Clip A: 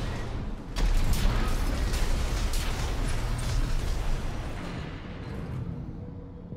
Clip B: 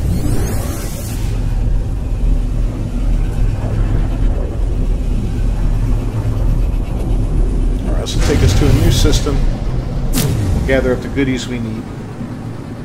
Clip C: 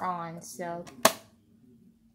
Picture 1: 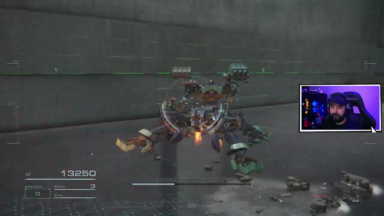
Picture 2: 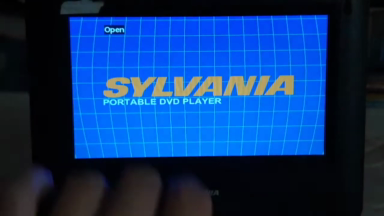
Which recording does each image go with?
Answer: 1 A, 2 C